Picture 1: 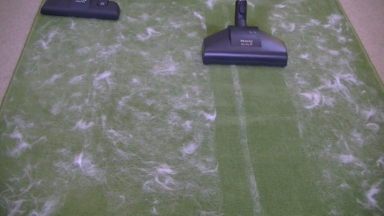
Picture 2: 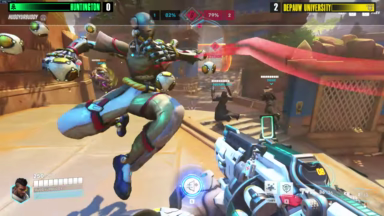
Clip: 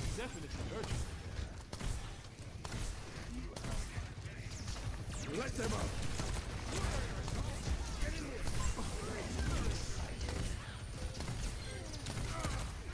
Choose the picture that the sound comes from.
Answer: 2